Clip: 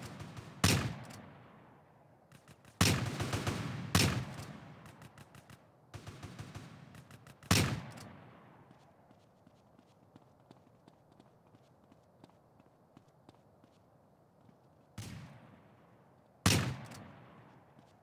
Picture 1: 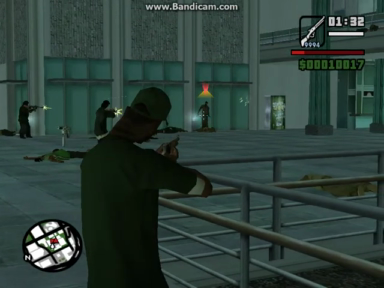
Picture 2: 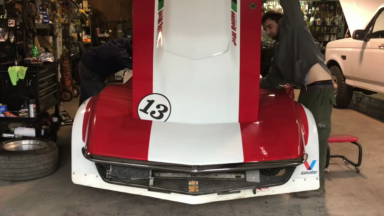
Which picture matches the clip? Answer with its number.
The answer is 1